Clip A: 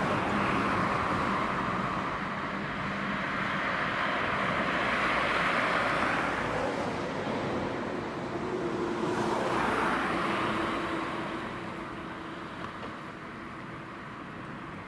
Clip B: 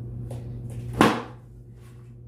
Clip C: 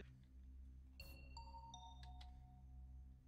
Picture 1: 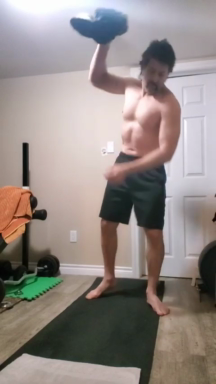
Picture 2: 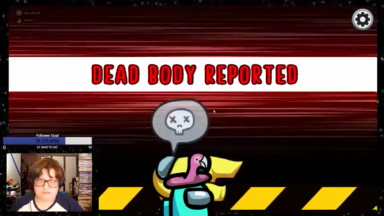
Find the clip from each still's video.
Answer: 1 B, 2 C